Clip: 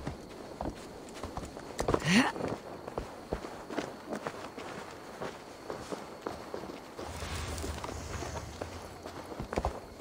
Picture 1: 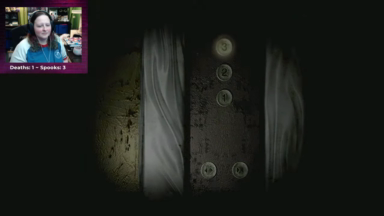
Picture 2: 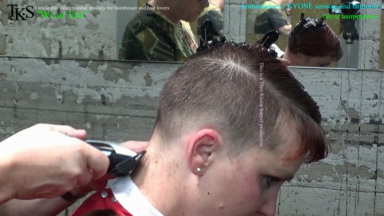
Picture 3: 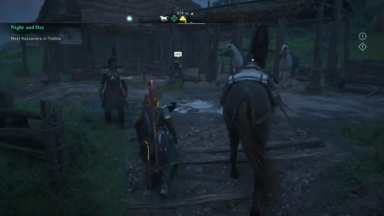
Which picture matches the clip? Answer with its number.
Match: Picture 3